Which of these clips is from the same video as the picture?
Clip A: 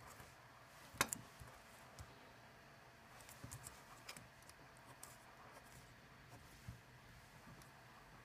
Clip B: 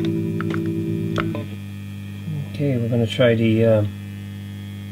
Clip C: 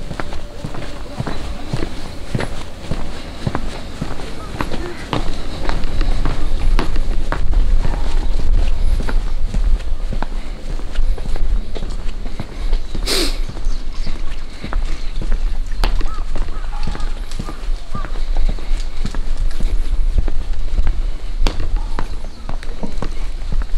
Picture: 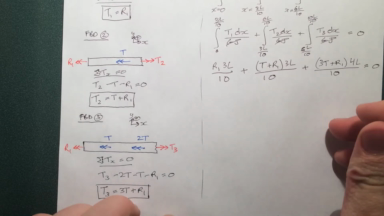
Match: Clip A